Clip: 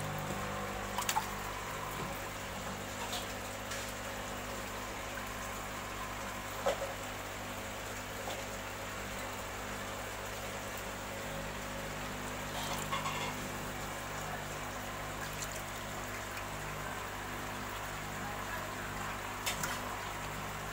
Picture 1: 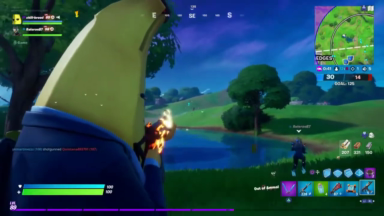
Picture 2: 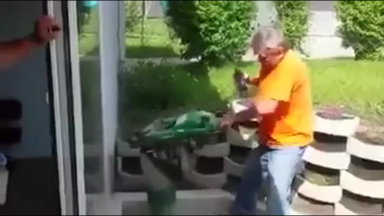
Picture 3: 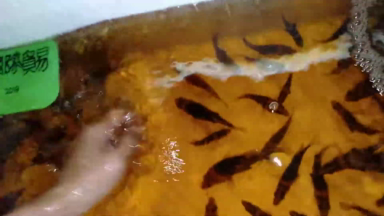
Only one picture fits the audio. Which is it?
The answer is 3